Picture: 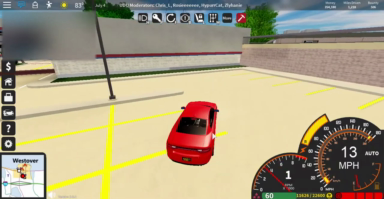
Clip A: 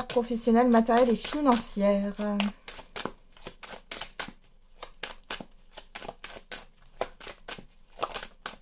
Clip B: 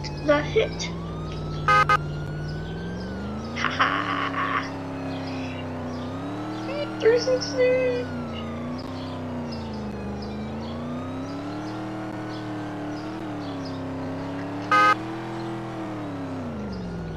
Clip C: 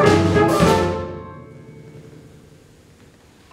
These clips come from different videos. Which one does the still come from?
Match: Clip B